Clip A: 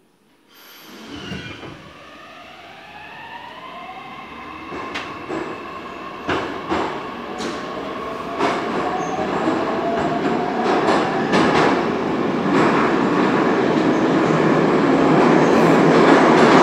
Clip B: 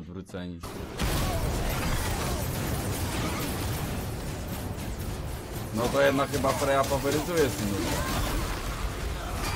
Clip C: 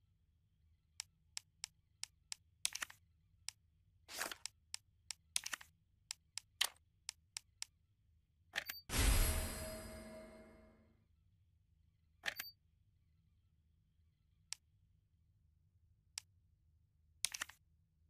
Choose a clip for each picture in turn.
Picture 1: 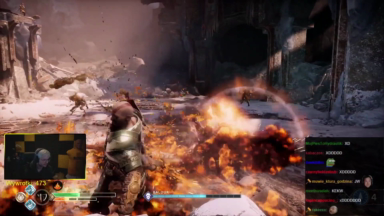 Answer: B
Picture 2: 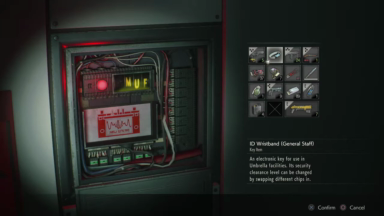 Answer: C